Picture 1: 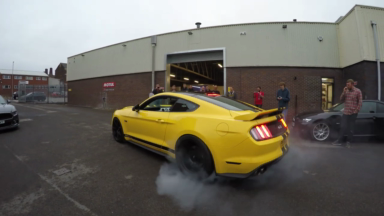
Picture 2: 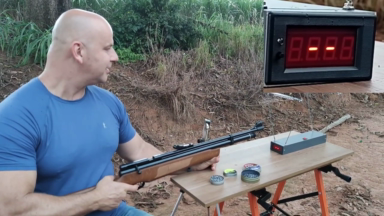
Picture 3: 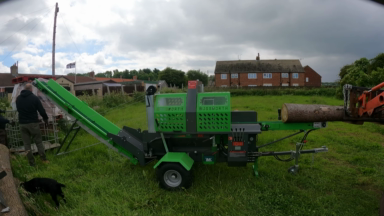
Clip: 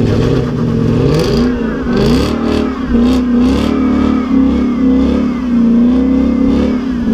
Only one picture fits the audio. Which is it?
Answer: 1